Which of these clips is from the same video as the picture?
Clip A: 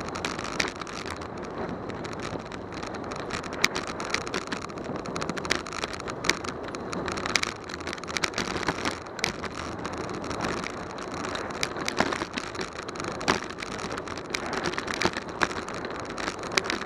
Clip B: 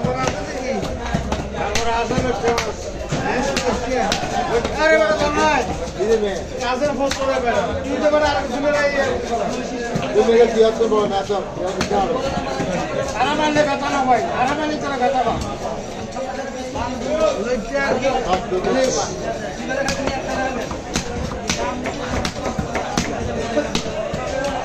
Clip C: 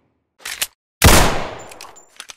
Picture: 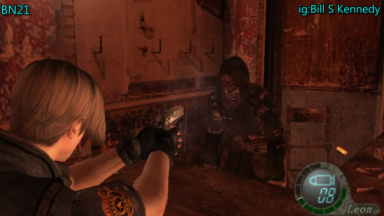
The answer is C